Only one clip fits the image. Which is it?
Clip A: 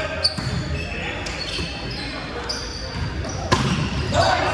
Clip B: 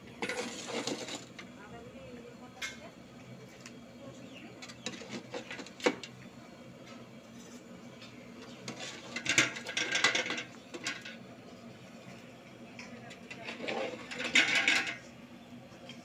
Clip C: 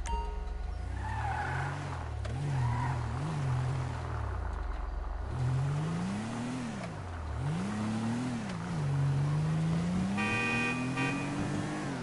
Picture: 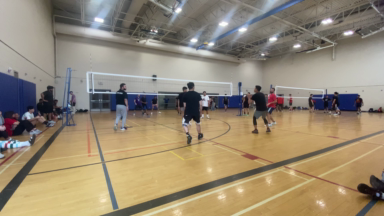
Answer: A